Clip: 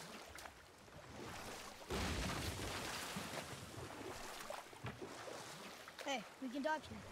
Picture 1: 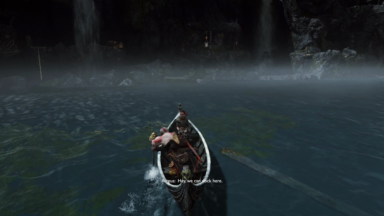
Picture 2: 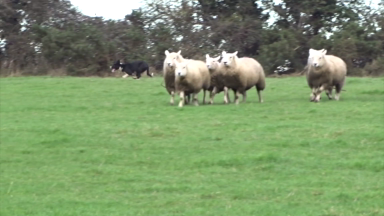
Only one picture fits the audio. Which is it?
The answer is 1